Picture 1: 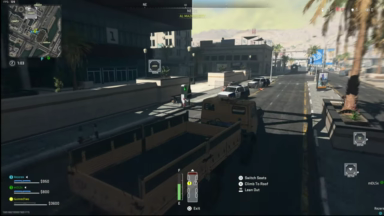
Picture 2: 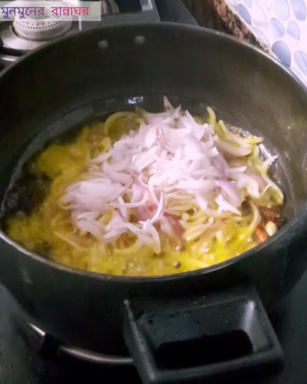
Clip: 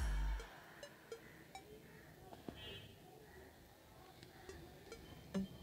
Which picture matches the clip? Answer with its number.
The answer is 2